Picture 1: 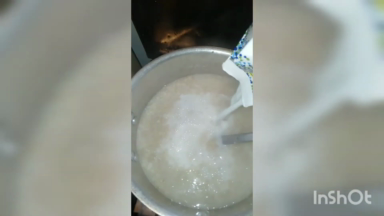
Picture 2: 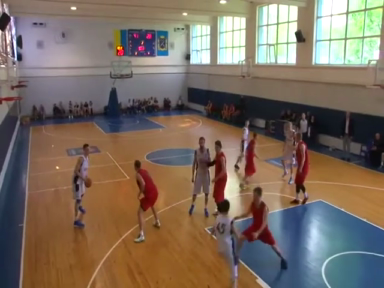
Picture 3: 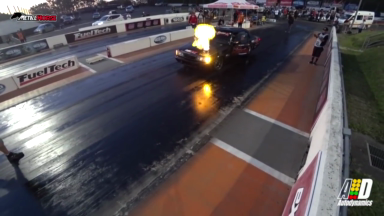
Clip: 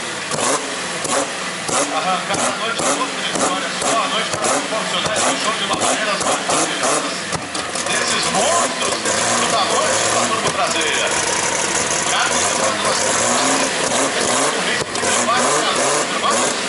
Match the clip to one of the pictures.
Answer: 3